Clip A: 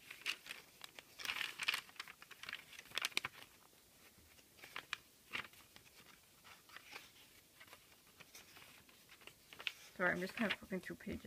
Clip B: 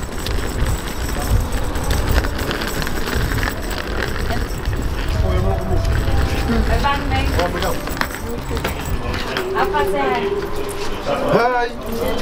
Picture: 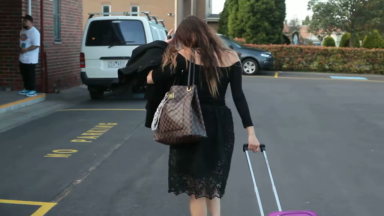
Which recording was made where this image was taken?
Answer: B